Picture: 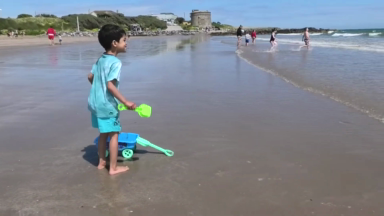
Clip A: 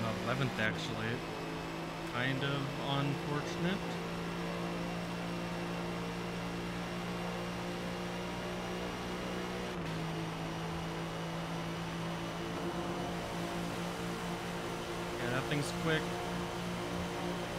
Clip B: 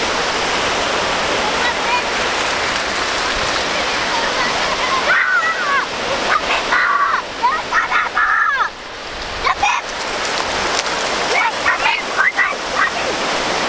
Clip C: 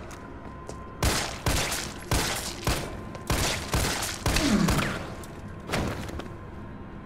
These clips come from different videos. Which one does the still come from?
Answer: B